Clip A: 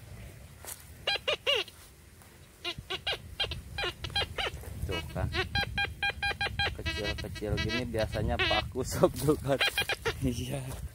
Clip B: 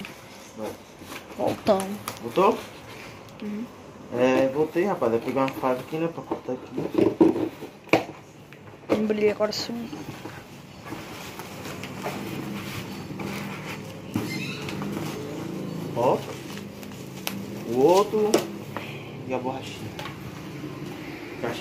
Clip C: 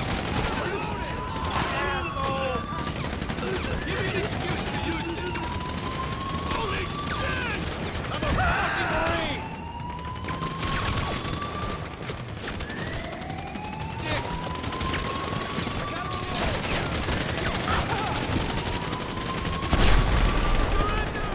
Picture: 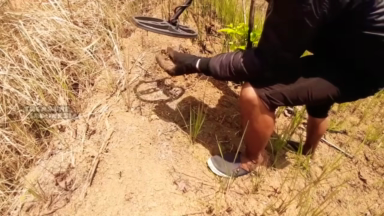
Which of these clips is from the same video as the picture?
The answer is A